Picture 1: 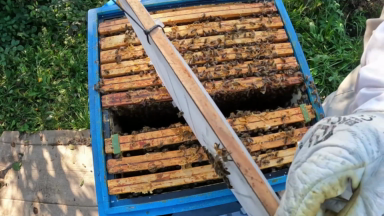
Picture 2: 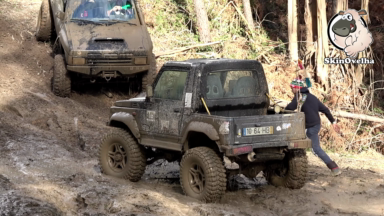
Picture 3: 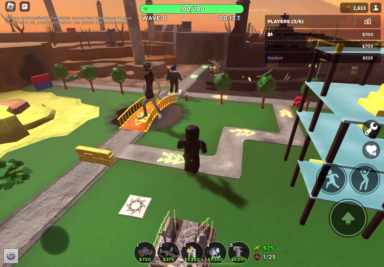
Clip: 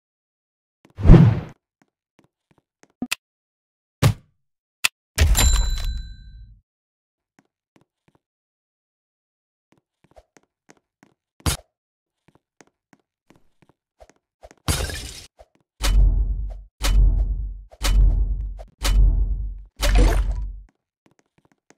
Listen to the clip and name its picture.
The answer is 3